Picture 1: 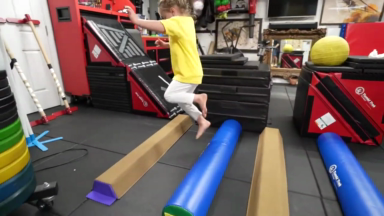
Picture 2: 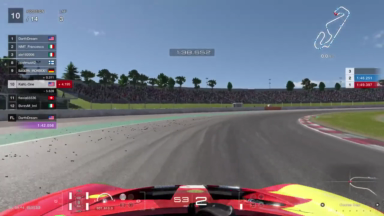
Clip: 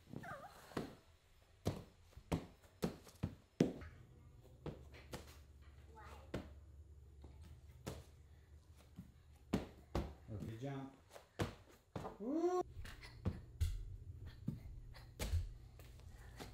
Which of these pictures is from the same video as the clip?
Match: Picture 1